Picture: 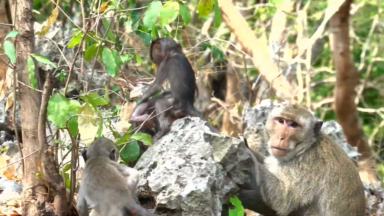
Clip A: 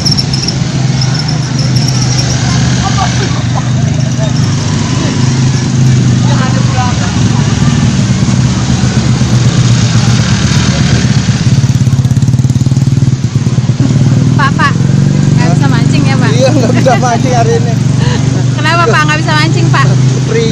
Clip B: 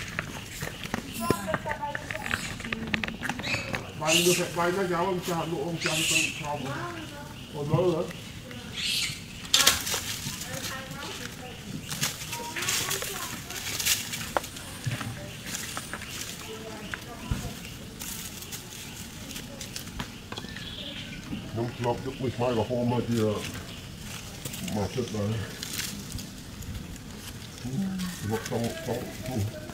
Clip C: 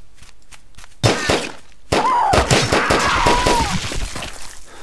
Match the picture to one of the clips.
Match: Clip B